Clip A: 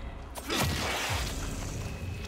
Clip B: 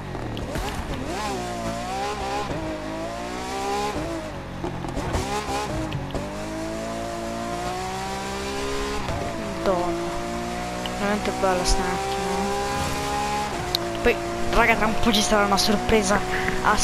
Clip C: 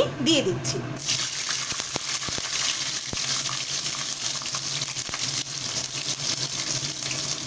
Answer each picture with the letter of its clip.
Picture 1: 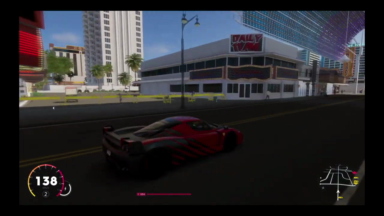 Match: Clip B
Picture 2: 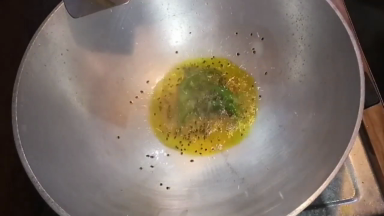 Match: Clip C